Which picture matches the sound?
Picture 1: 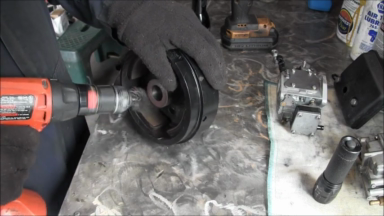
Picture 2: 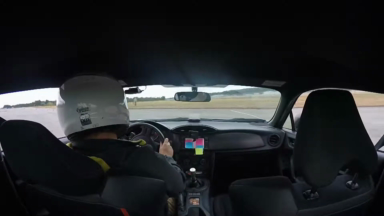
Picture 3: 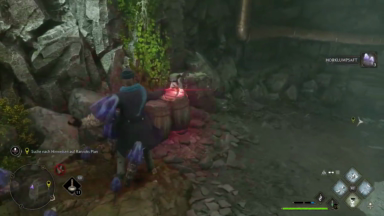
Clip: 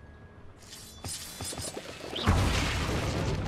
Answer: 3